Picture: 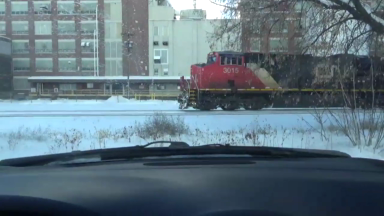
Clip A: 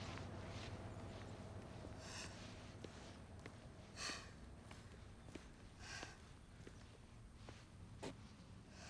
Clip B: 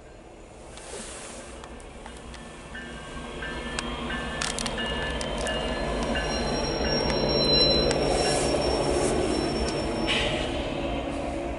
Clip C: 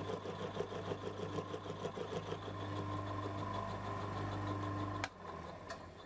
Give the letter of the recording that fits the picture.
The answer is B